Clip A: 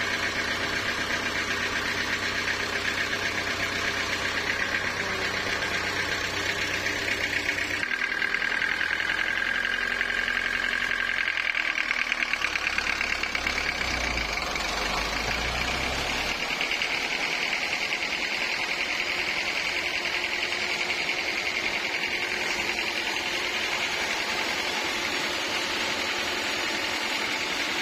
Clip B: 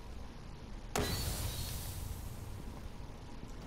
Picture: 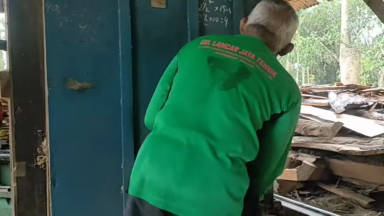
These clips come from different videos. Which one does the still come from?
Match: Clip A